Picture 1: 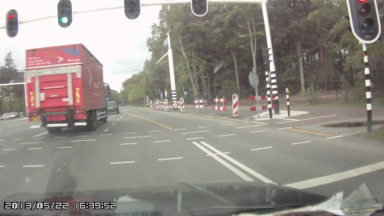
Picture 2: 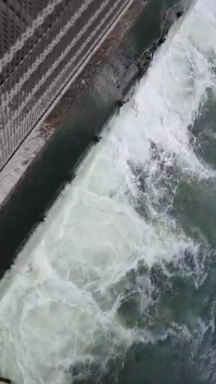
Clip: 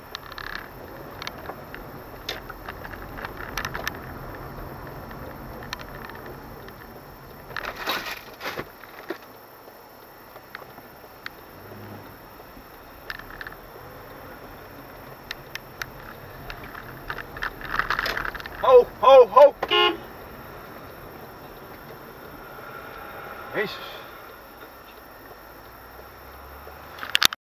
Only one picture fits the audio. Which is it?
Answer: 1